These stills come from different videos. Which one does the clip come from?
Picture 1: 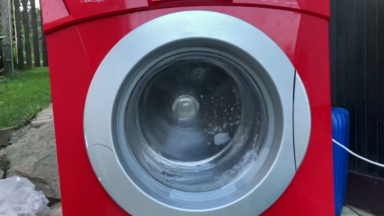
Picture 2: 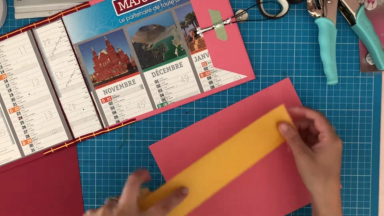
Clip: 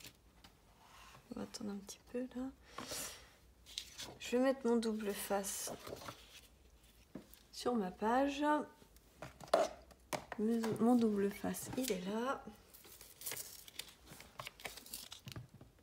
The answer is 2